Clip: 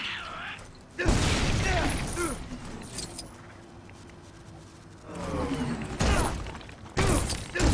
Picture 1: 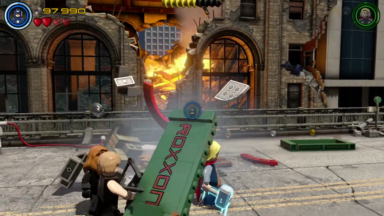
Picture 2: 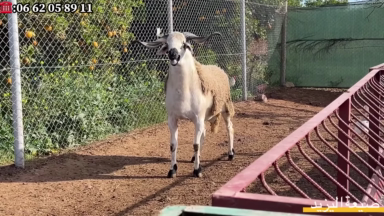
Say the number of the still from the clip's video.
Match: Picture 1